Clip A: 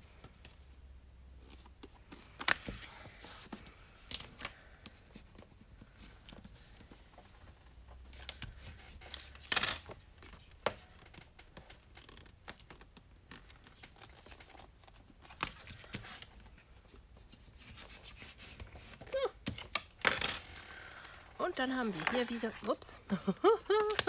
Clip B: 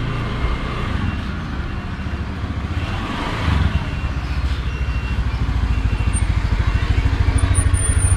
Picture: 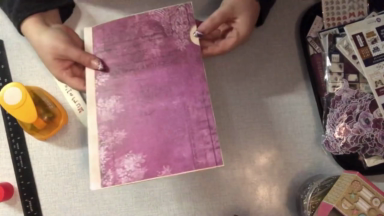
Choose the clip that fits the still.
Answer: A